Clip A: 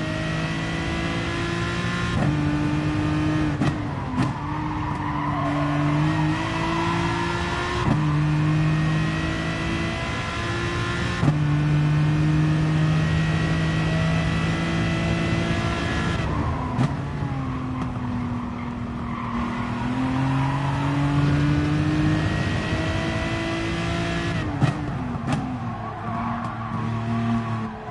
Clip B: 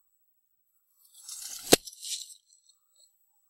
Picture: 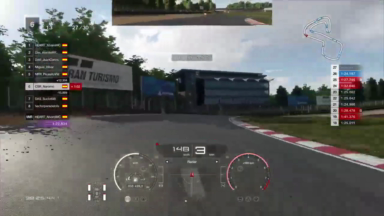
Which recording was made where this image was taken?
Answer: A